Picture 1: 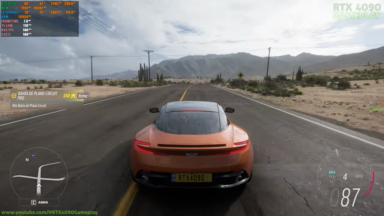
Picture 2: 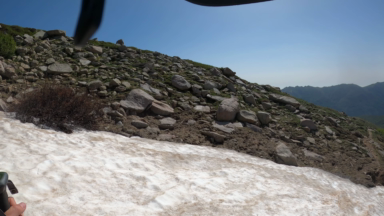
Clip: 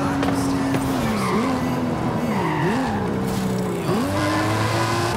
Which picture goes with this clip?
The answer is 1